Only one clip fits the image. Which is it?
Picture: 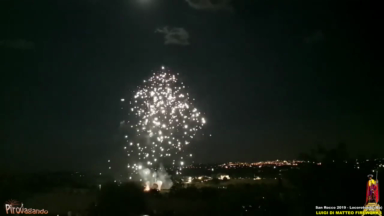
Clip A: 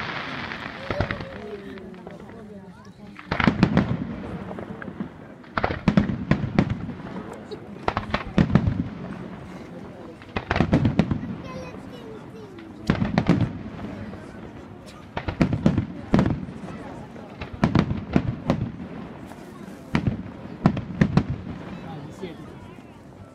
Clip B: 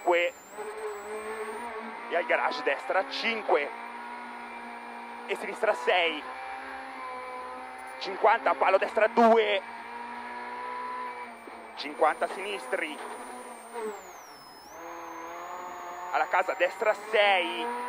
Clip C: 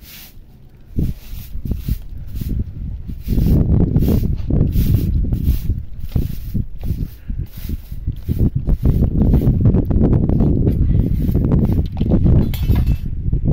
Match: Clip A